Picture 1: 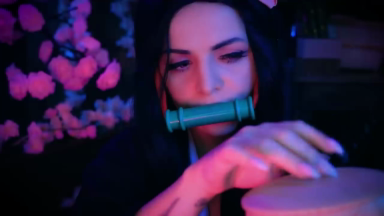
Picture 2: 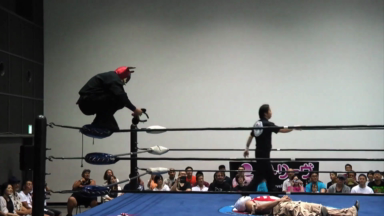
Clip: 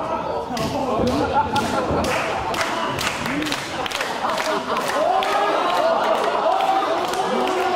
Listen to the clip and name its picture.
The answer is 2